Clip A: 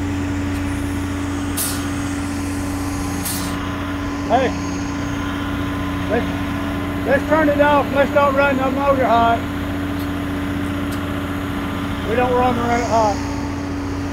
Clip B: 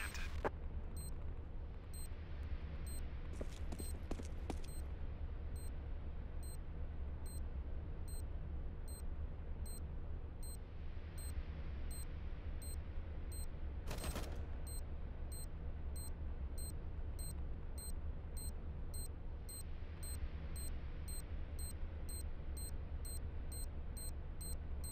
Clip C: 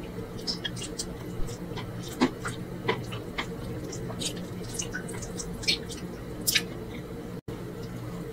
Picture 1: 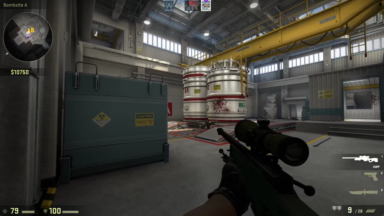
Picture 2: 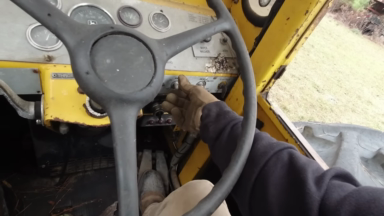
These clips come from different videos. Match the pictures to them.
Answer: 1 B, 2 A